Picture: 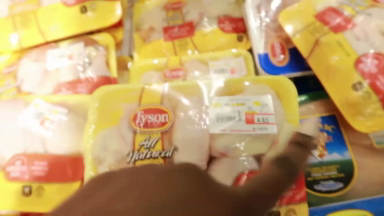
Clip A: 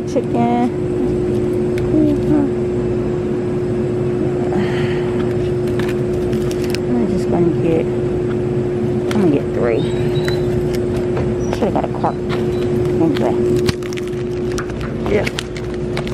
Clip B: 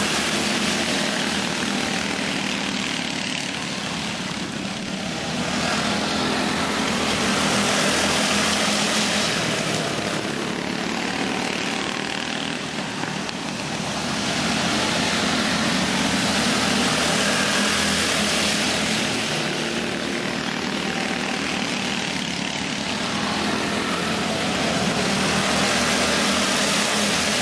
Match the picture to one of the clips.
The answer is A